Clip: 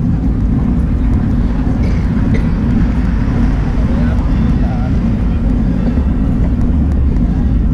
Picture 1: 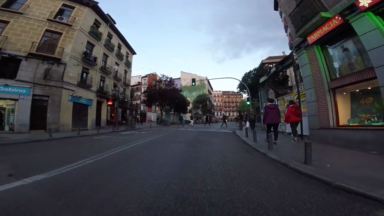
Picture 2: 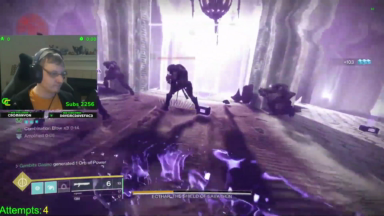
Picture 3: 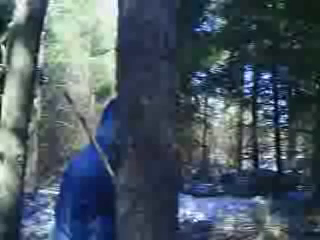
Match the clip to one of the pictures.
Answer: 1